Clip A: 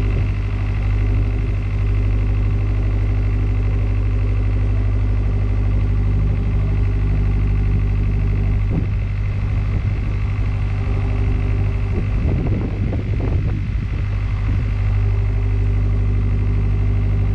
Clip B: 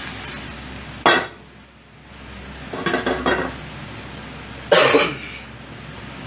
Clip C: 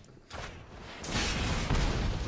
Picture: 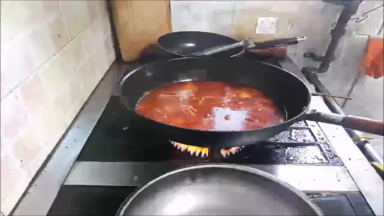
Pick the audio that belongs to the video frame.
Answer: B